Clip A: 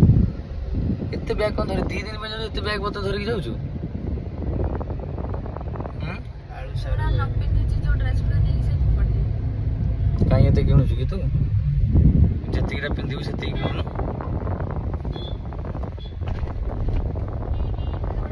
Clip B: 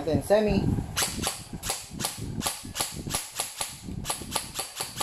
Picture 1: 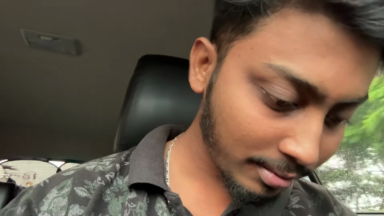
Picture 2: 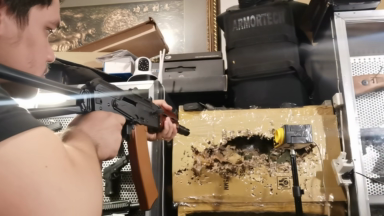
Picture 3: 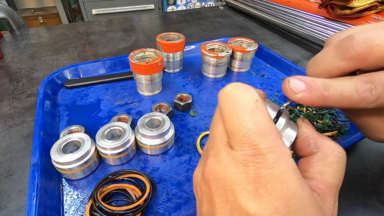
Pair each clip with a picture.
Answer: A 1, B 2